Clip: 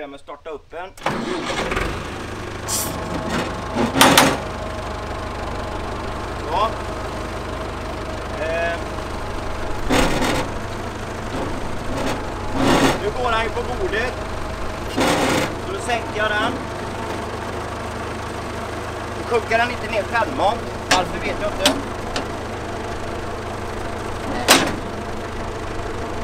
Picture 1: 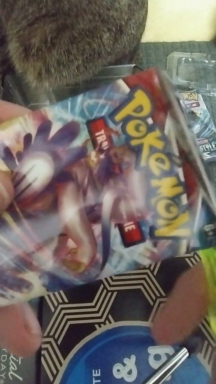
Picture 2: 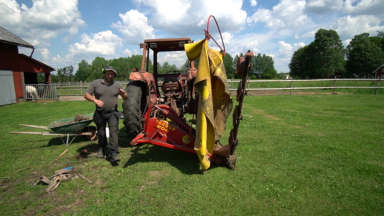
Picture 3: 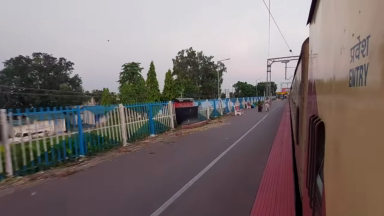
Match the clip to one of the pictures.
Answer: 2